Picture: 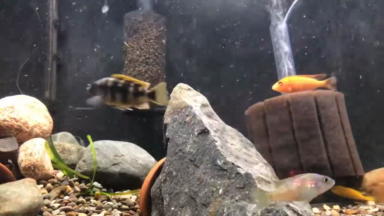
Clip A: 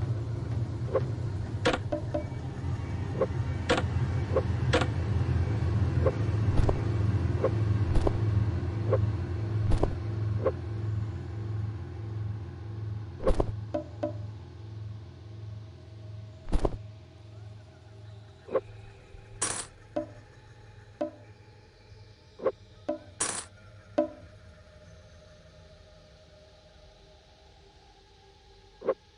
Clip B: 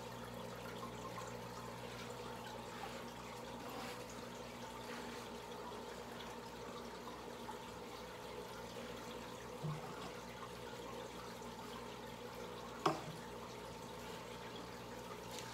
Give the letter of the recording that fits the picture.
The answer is B